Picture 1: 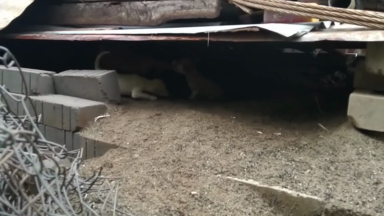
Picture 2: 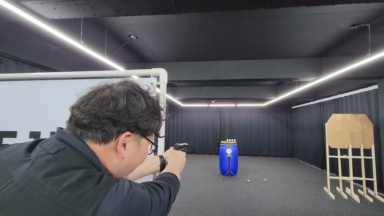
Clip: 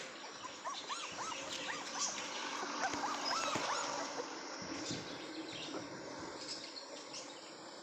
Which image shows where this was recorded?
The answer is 1